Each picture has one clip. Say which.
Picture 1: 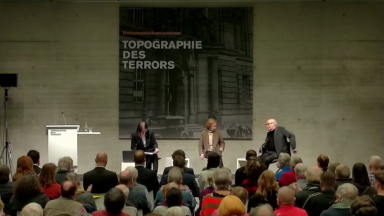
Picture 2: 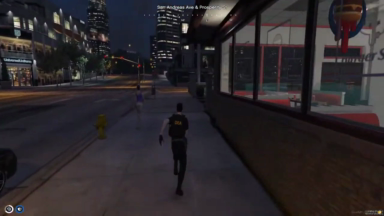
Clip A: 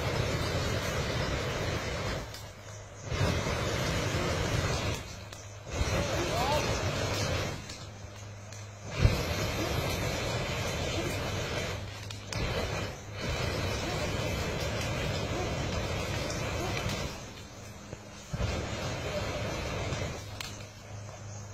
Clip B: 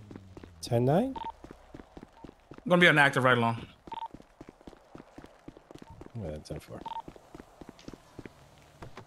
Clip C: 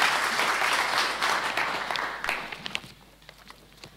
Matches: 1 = C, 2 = B